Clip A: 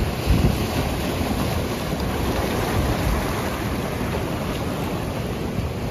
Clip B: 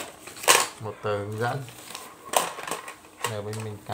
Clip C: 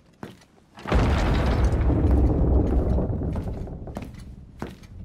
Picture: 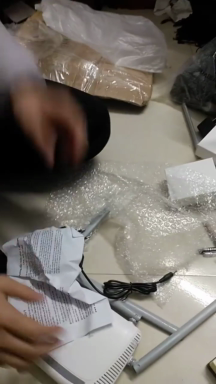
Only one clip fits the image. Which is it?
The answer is B